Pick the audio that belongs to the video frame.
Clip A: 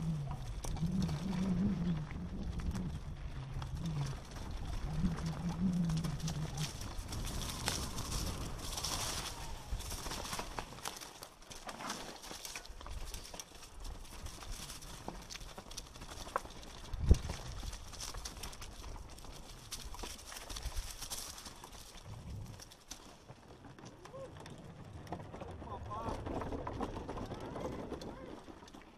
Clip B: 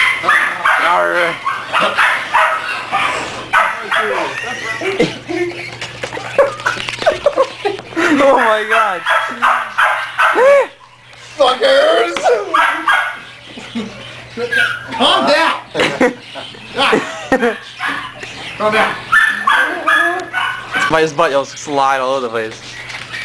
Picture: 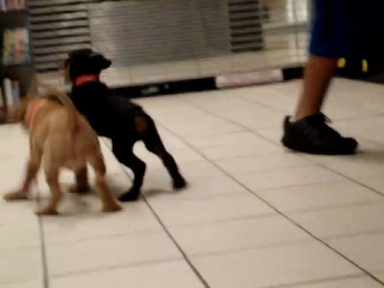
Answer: B